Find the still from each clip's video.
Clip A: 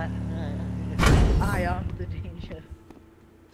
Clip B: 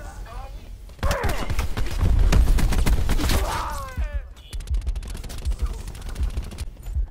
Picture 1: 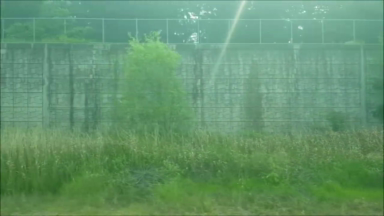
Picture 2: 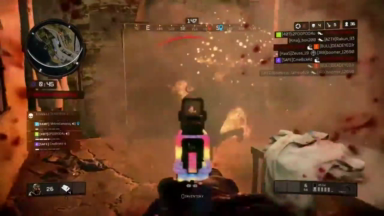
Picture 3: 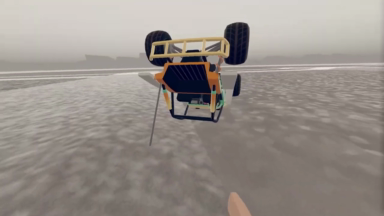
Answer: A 3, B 2